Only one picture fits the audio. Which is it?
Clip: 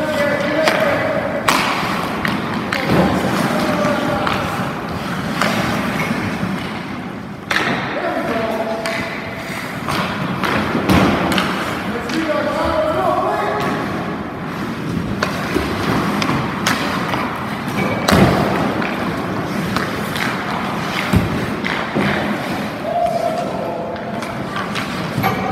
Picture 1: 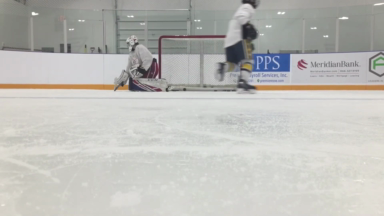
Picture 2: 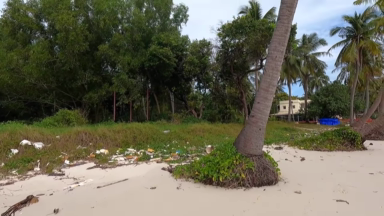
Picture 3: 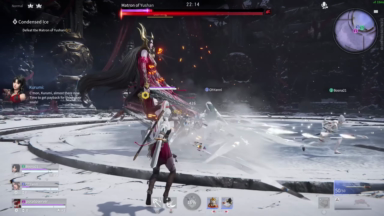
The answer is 1